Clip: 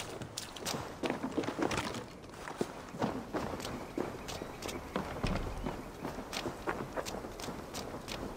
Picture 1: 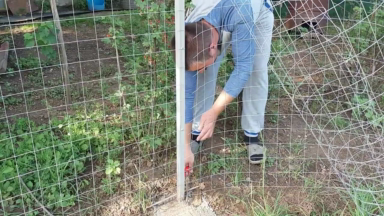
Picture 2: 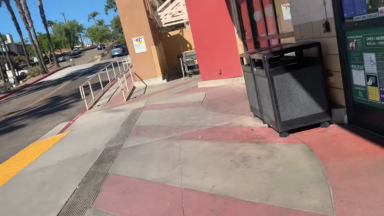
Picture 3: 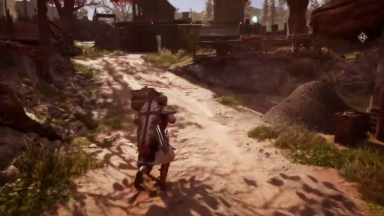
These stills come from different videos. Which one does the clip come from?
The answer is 3